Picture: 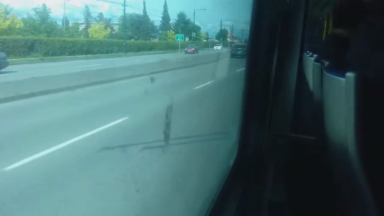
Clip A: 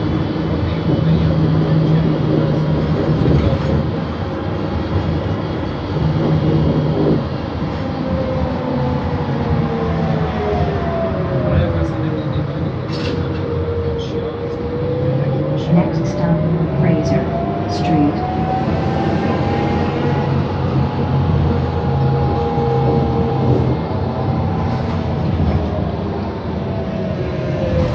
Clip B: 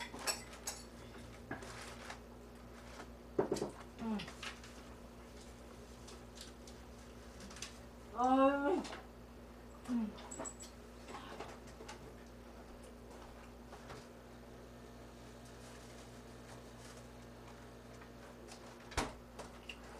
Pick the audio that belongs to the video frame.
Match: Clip A